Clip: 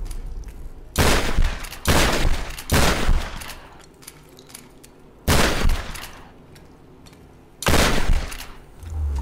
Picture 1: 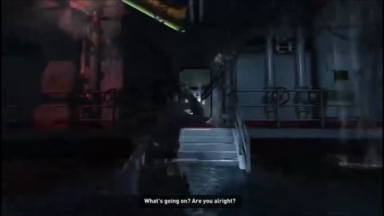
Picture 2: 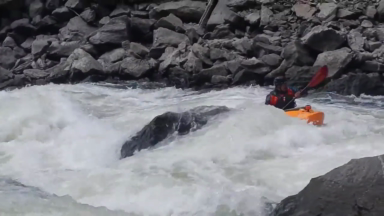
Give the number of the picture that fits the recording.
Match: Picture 1